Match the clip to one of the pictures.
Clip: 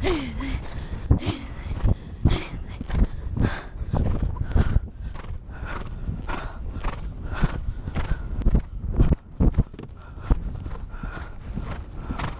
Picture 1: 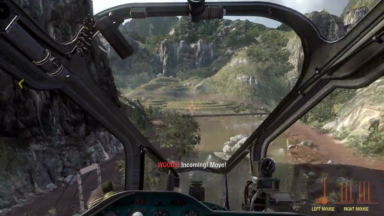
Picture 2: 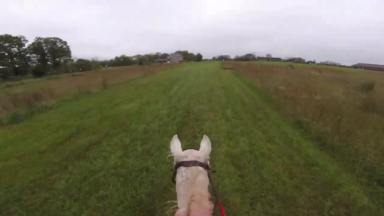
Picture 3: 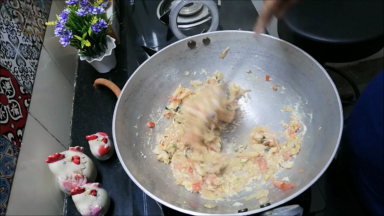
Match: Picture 2